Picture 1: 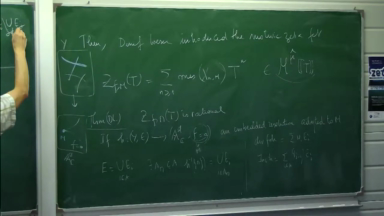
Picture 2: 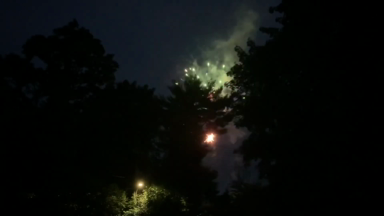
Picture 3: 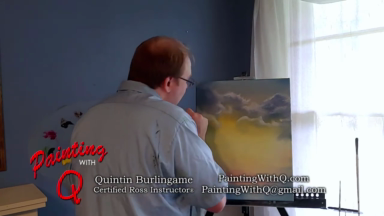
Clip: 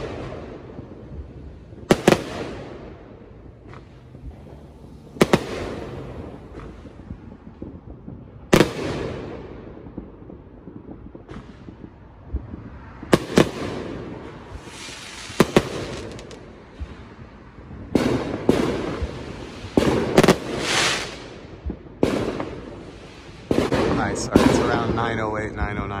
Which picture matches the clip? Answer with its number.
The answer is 2